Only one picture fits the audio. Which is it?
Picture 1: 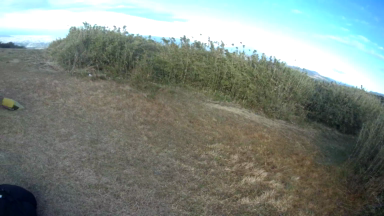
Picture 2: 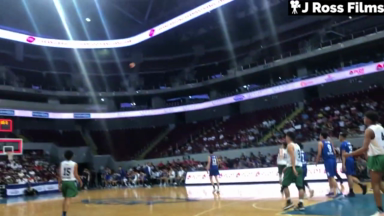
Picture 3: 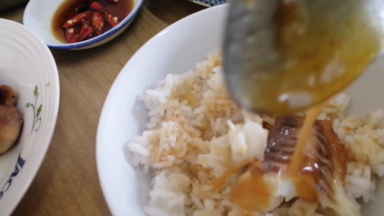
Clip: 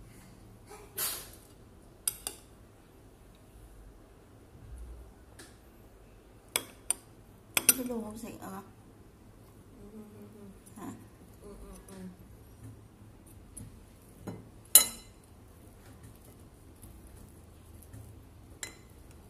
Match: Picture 3